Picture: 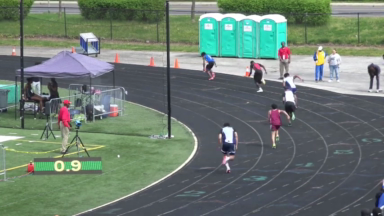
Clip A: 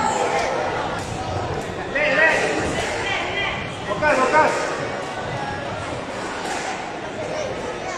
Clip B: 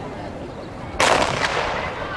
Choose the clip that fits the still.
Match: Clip B